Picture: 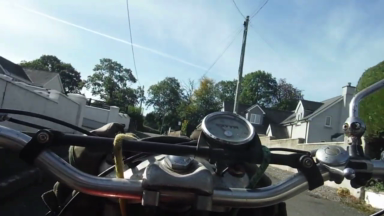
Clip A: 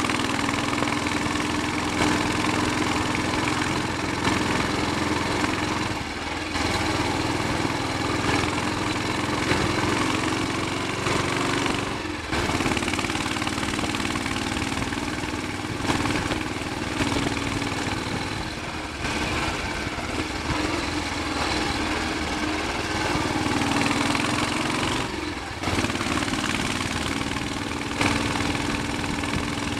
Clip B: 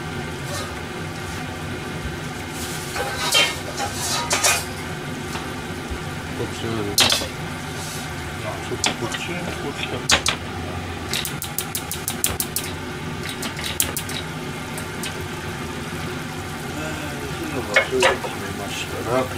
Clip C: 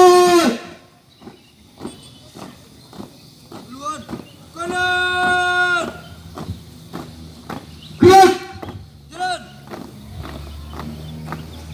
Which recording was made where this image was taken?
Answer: A